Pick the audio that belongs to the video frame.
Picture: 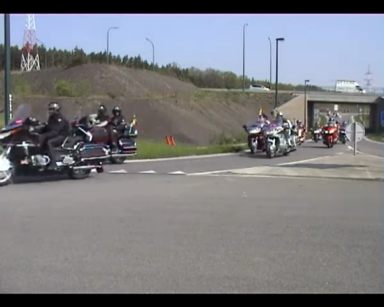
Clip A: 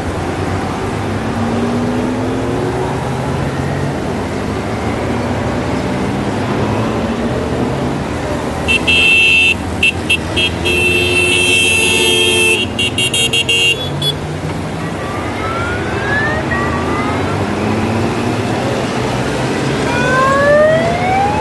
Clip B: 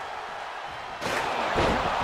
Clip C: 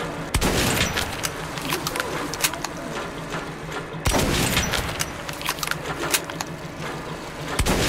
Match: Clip A